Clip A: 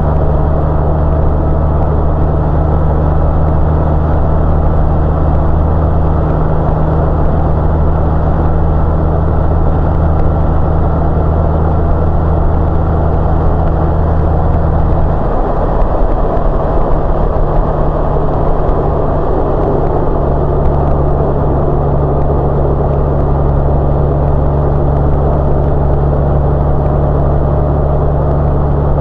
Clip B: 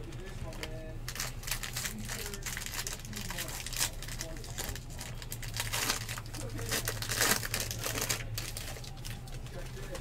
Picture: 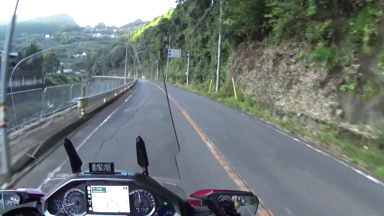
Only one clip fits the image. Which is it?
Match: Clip A